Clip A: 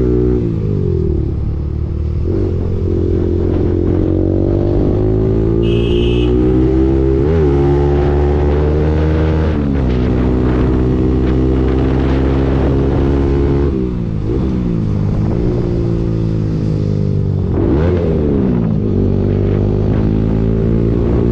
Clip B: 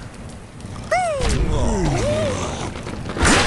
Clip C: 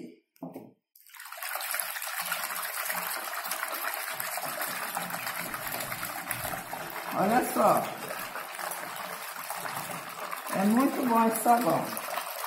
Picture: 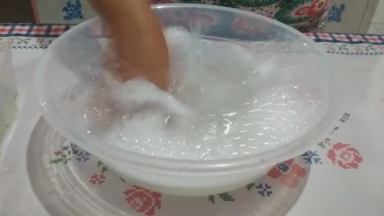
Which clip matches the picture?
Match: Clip C